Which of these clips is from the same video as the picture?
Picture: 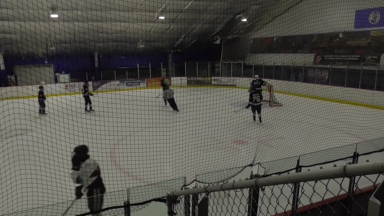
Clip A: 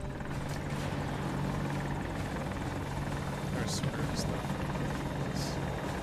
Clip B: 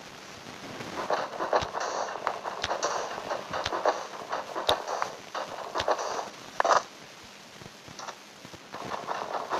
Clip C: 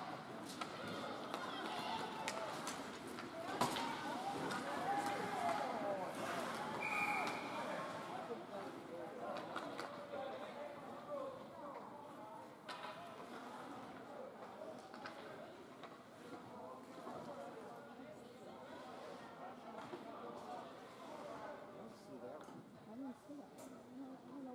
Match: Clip C